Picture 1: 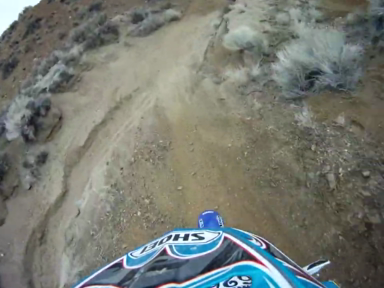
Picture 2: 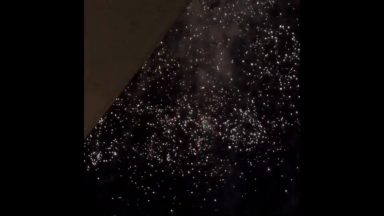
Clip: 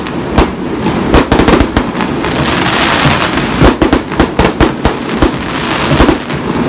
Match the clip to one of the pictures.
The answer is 2